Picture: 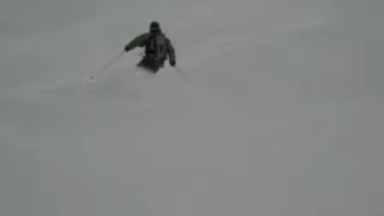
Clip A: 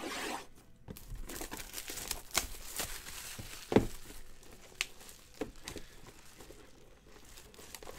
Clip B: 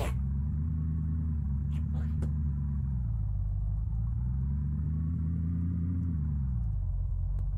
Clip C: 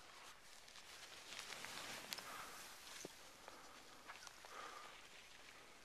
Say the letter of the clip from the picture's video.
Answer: C